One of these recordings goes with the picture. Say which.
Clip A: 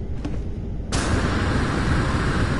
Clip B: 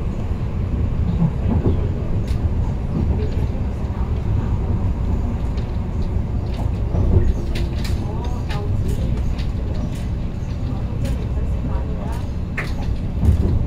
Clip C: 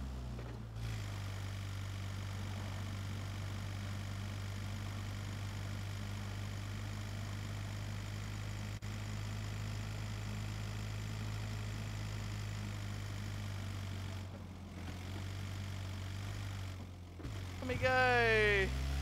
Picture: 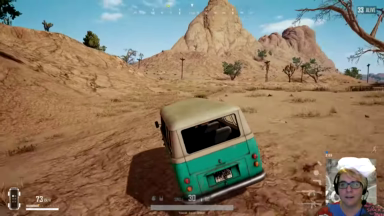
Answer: C